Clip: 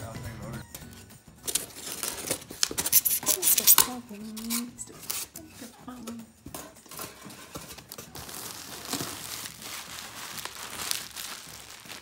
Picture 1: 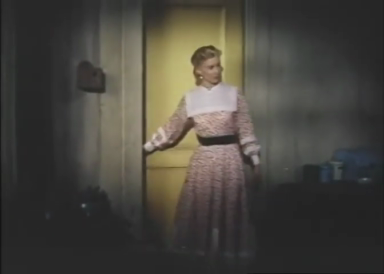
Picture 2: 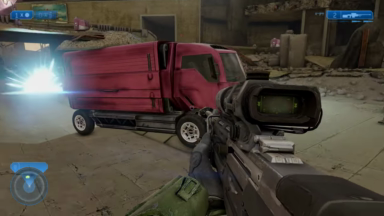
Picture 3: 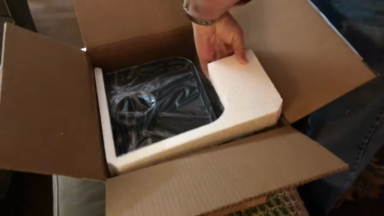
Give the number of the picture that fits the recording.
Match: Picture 3